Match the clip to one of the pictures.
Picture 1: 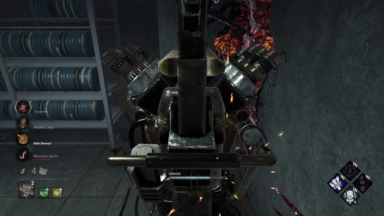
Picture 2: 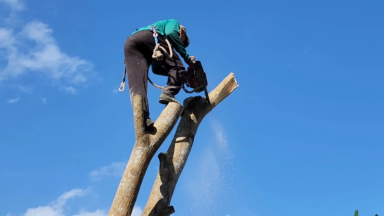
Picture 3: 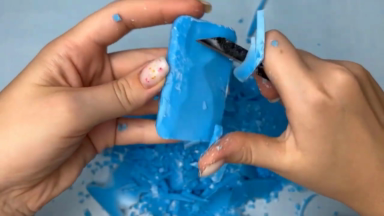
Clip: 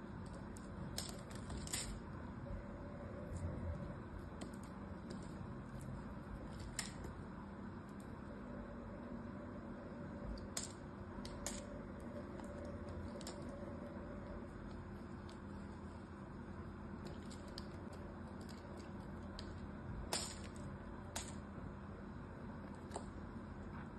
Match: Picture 3